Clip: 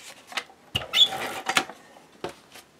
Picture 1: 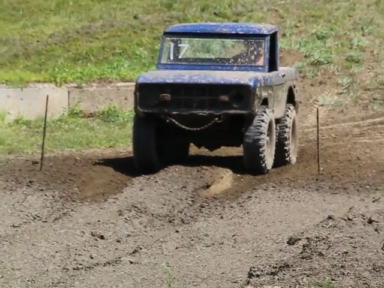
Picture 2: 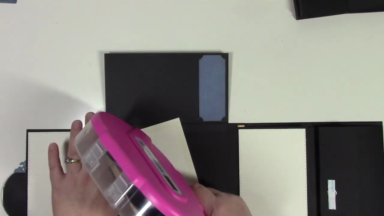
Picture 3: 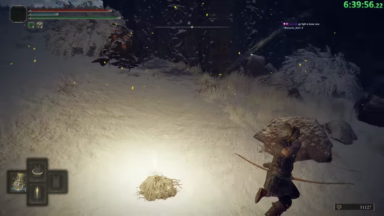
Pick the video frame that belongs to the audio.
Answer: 2